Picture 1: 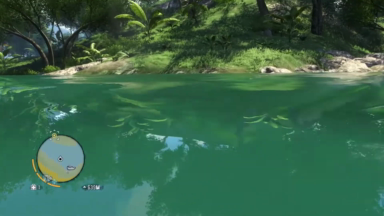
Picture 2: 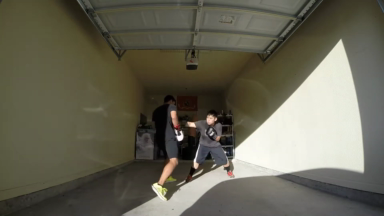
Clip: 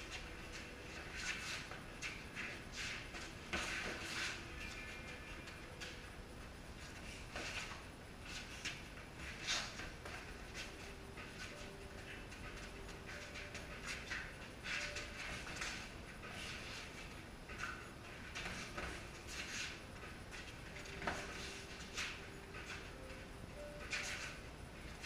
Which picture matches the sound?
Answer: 2